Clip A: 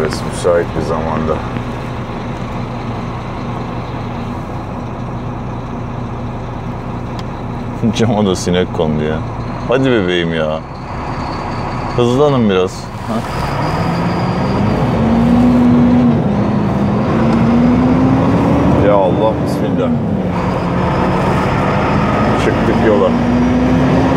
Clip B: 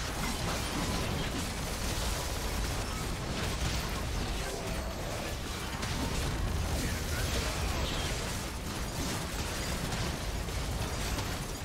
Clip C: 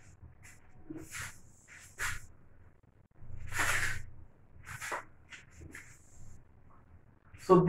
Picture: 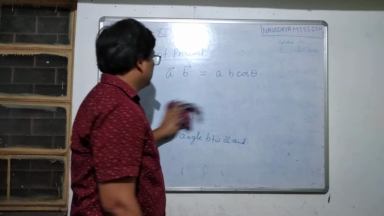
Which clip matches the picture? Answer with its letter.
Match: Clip C